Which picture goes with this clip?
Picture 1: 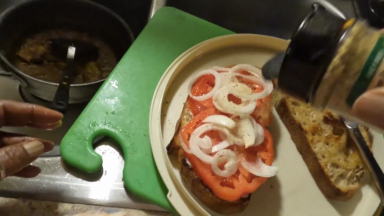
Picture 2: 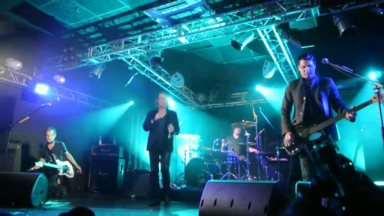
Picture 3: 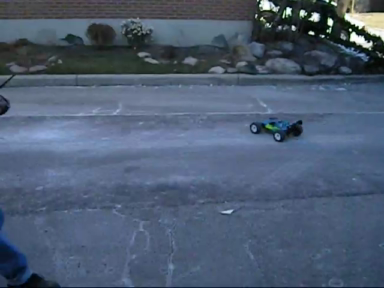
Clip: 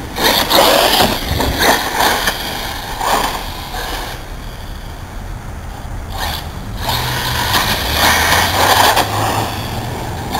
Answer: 3